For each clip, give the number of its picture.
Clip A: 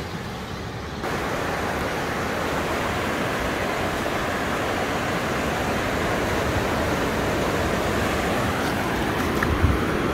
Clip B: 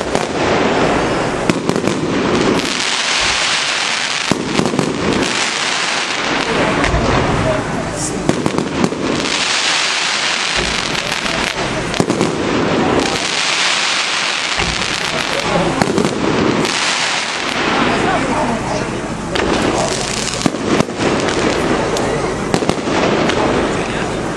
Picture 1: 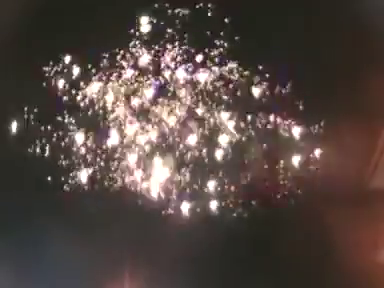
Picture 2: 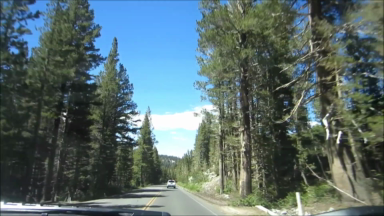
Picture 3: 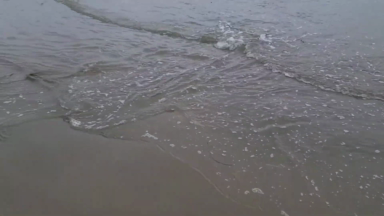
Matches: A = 3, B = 1